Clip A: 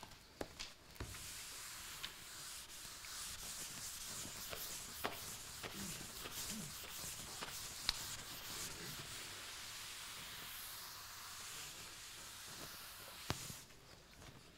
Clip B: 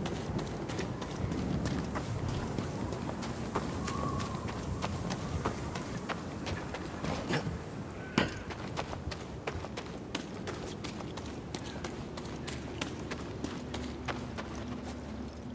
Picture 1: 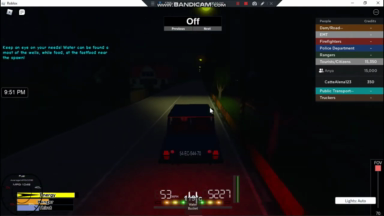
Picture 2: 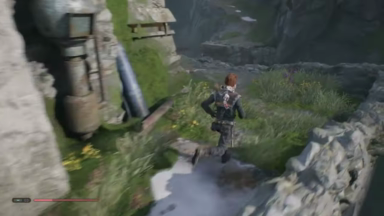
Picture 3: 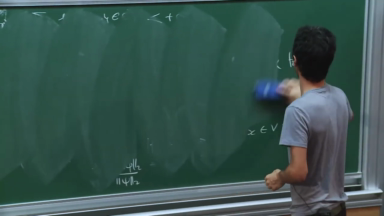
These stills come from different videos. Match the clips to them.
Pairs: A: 3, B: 2